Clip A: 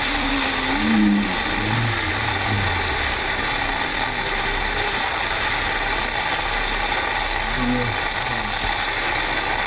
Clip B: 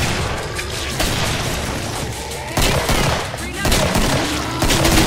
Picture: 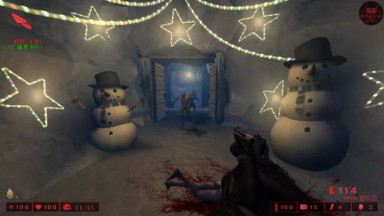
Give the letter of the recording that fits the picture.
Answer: B